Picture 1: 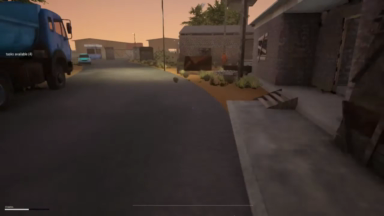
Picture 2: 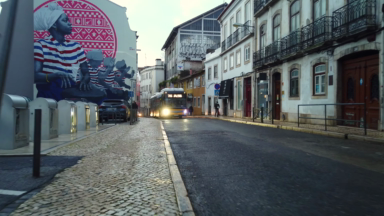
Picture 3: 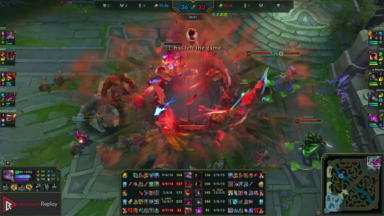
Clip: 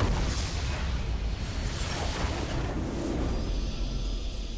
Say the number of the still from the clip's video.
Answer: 3